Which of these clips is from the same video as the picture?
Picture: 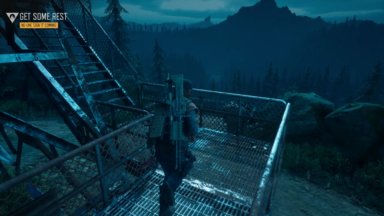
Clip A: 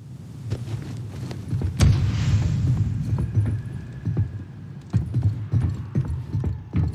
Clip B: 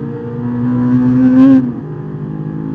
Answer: A